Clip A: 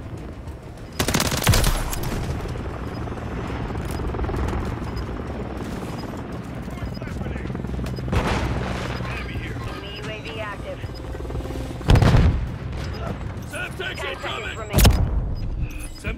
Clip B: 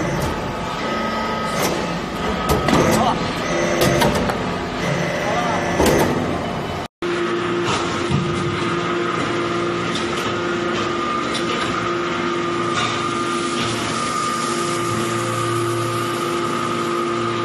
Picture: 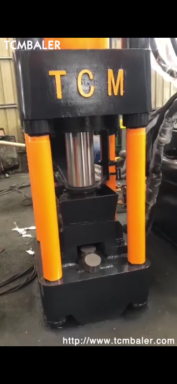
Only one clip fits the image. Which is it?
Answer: B